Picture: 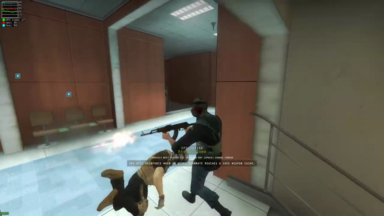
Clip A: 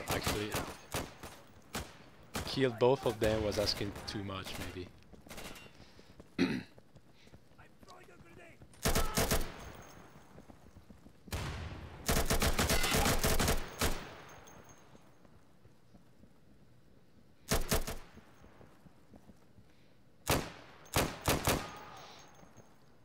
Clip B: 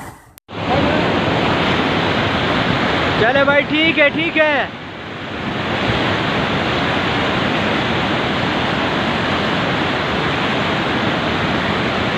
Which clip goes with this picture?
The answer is A